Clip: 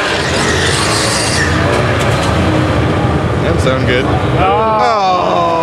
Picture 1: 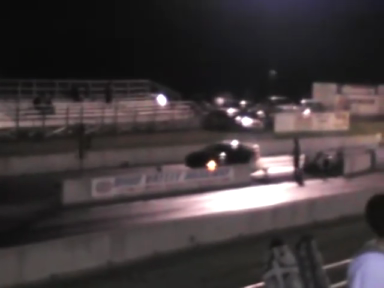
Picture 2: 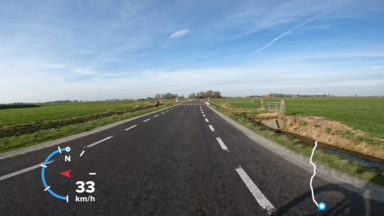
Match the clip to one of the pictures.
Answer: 1